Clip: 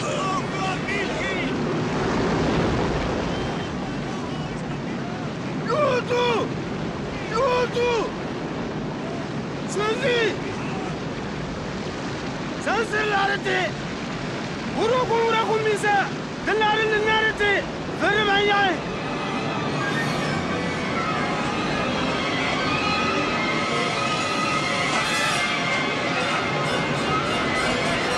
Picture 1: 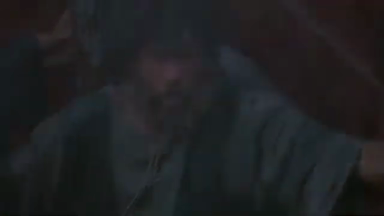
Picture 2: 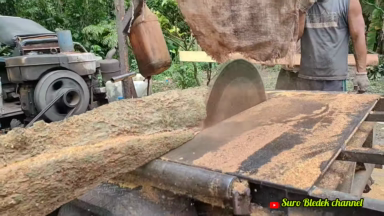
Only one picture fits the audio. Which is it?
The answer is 1